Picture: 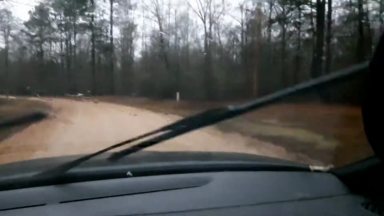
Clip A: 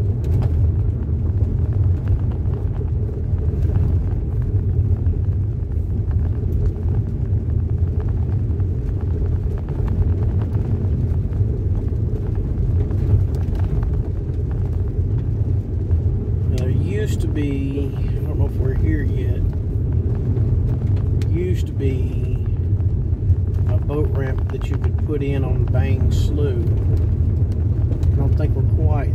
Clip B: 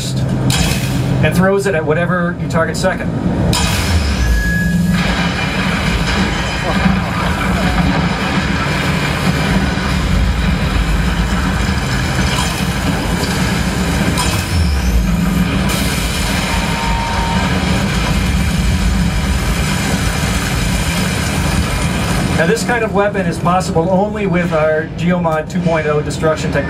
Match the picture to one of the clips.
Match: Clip A